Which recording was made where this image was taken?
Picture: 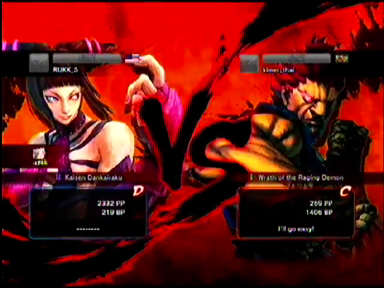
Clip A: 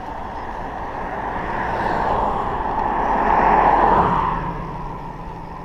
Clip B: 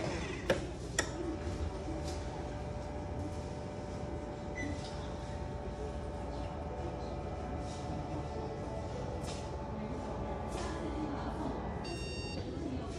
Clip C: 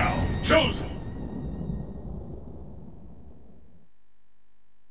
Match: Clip C